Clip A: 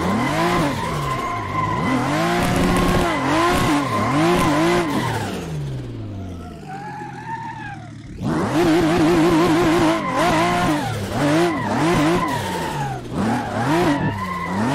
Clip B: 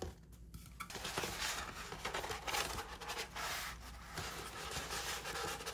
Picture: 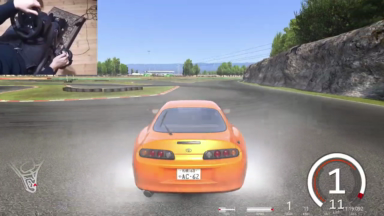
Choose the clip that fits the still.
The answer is A